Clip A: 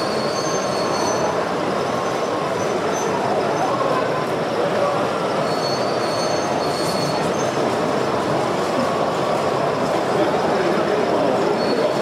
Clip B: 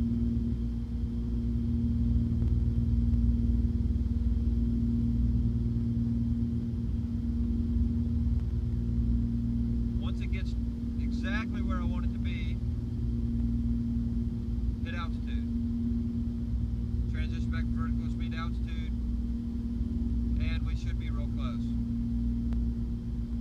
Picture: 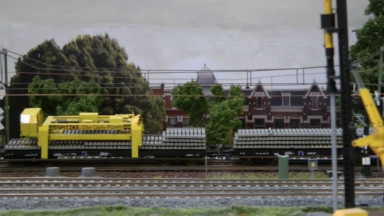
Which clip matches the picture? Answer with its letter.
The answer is A